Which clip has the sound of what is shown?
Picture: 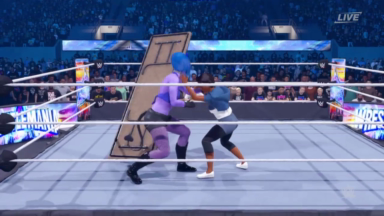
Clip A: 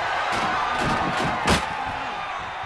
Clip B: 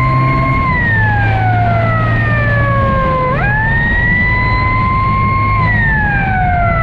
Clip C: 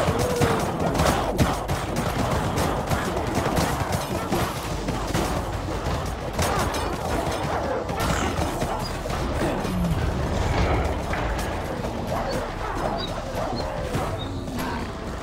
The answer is A